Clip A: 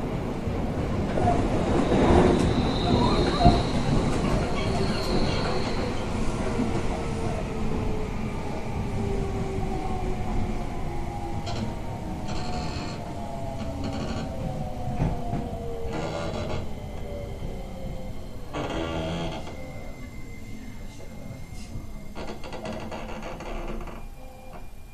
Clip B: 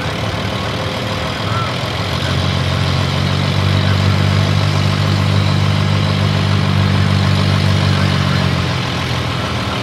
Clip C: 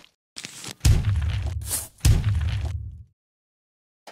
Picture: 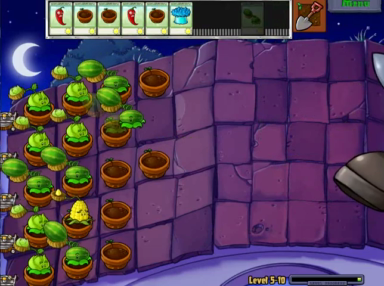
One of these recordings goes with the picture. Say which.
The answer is C